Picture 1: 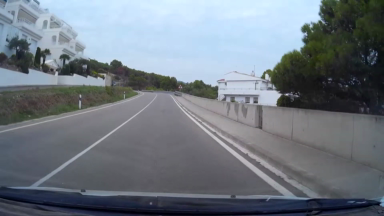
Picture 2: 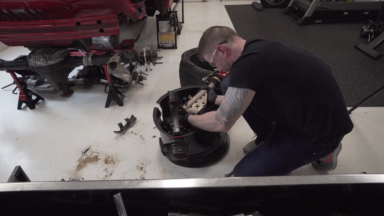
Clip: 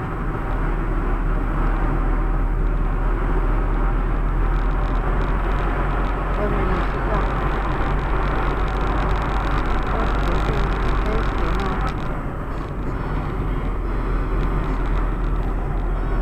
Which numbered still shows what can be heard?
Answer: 1